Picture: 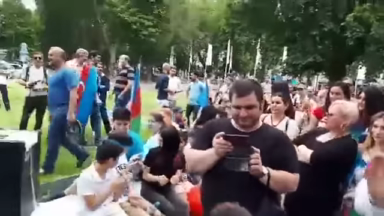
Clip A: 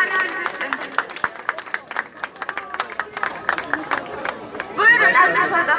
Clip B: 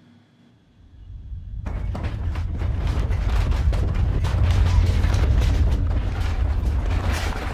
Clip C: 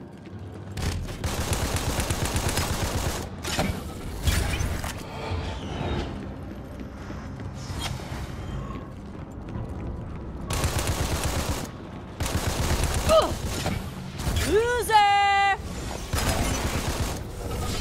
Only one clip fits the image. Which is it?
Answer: A